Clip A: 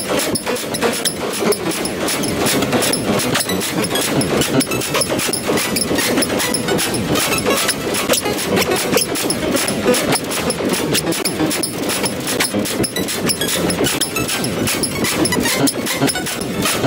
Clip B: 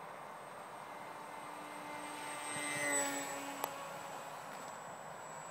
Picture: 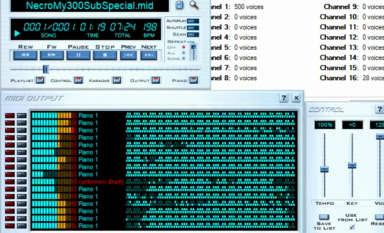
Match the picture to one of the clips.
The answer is A